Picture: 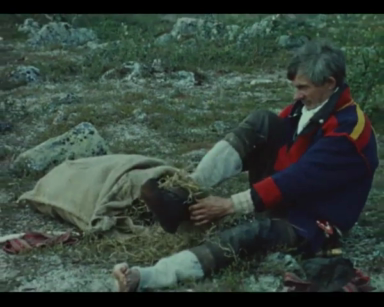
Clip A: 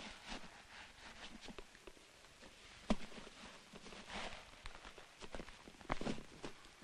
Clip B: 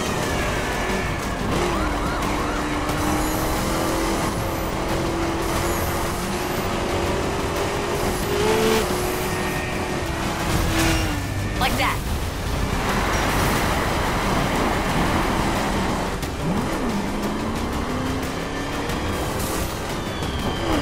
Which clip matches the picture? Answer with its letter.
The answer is A